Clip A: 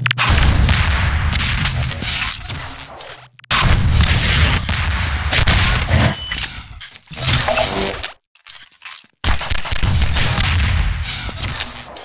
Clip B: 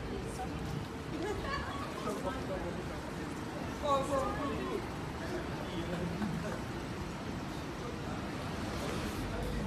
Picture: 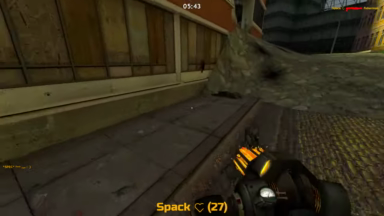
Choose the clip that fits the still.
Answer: A